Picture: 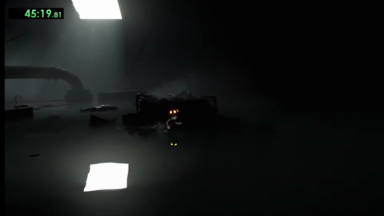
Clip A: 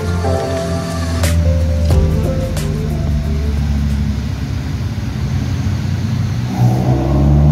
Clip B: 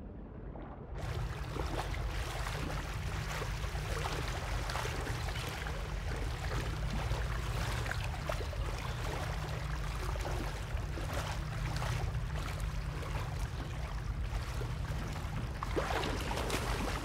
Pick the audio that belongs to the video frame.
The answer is B